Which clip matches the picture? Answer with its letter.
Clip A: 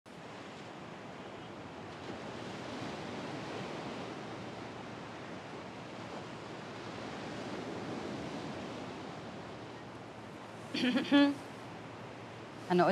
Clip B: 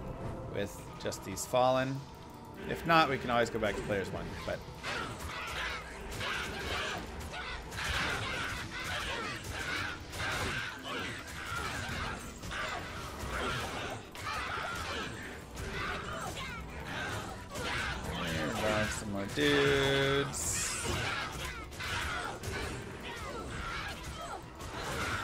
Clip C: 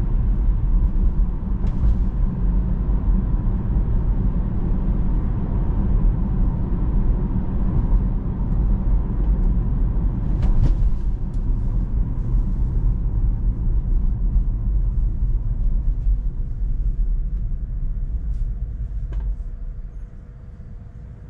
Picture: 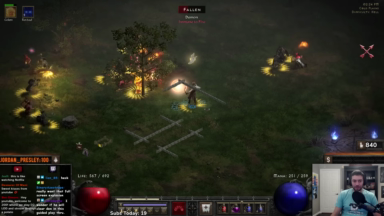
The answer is B